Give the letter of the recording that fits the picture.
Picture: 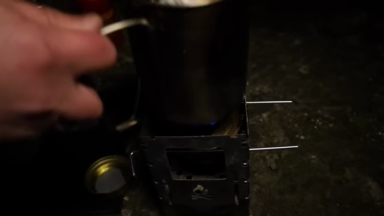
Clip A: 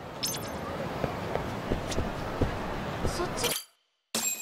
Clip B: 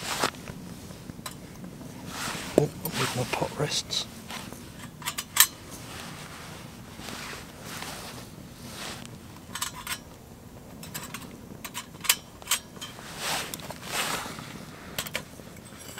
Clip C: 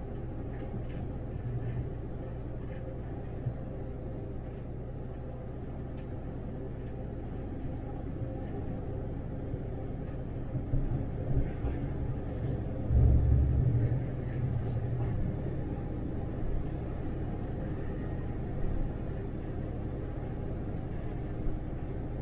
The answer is B